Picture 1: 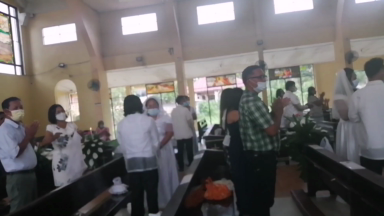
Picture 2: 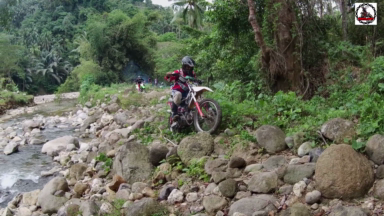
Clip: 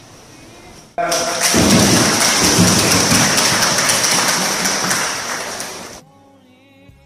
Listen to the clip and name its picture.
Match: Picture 1